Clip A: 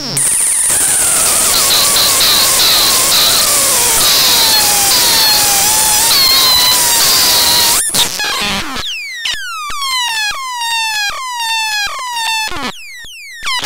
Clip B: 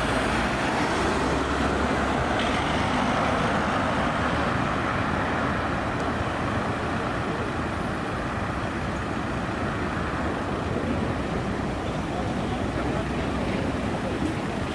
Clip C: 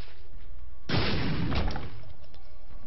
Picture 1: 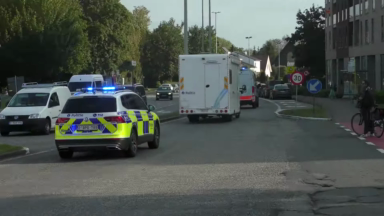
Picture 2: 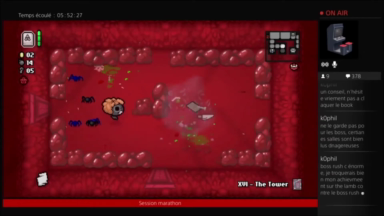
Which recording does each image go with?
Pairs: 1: B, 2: C